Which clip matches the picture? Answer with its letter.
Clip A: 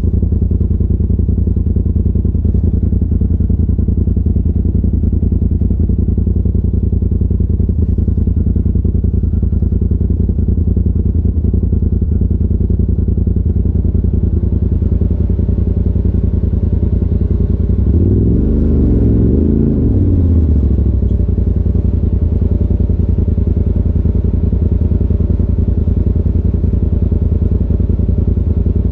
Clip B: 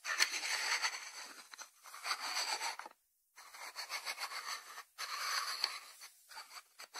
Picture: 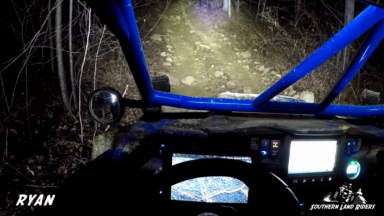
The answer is A